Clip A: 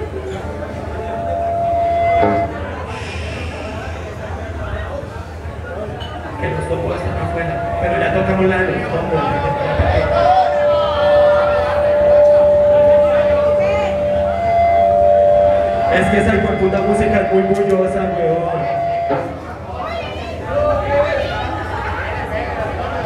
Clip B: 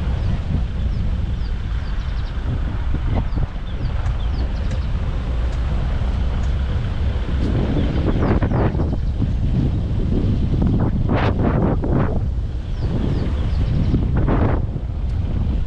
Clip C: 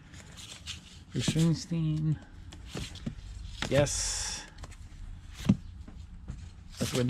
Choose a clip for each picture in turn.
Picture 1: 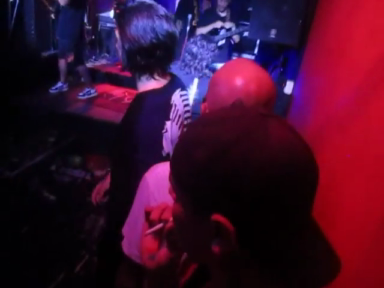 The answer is A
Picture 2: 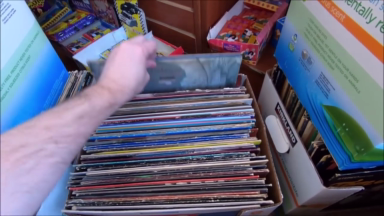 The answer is C